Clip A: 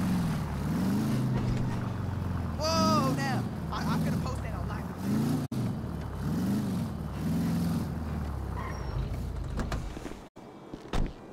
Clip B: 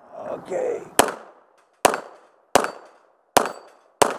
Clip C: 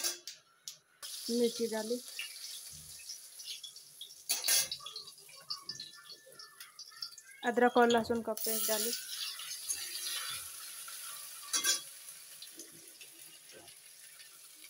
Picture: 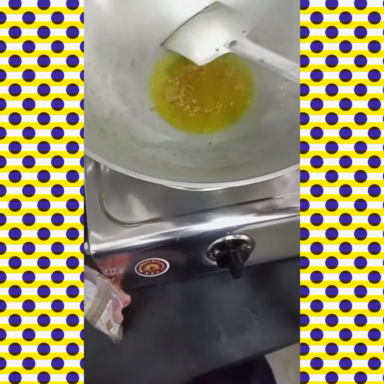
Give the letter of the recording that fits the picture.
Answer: C